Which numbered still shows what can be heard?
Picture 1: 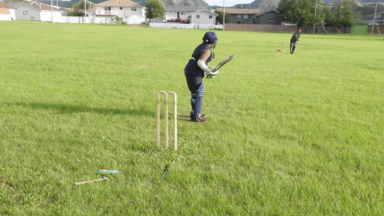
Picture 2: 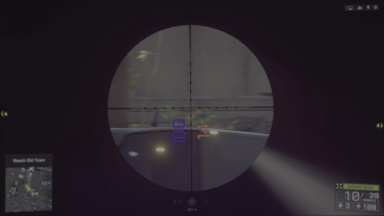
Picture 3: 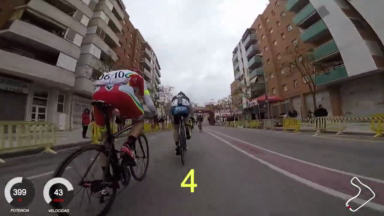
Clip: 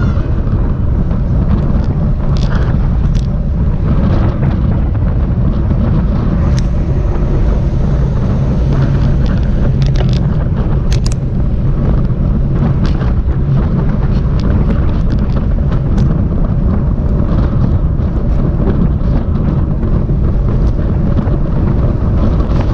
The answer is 3